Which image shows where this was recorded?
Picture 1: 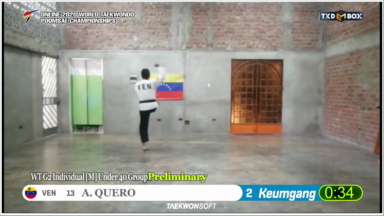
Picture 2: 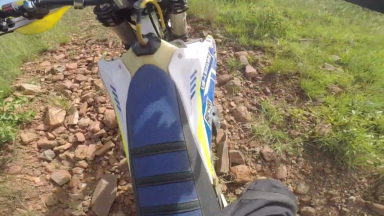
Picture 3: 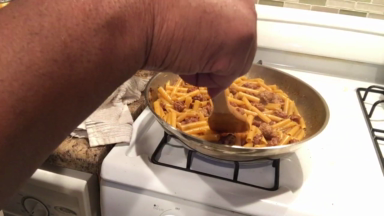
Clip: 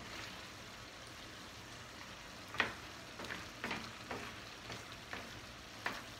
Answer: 3